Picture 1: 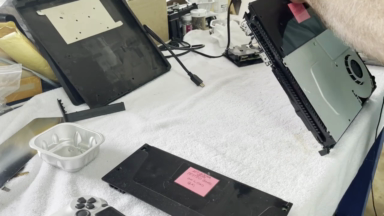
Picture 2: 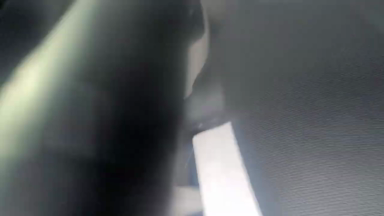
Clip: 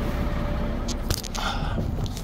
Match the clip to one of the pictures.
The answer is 2